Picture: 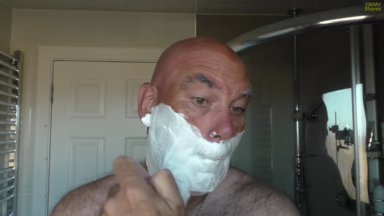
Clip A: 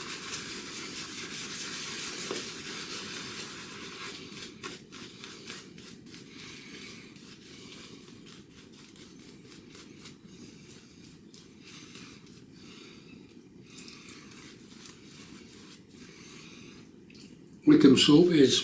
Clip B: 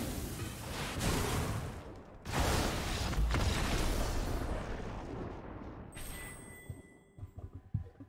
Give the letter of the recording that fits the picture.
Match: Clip A